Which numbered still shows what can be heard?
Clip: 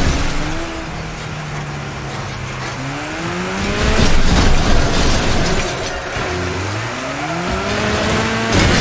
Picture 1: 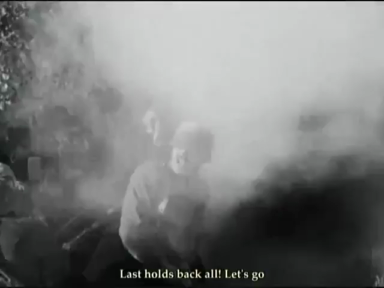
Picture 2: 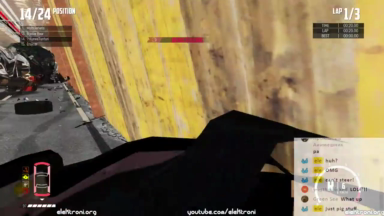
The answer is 2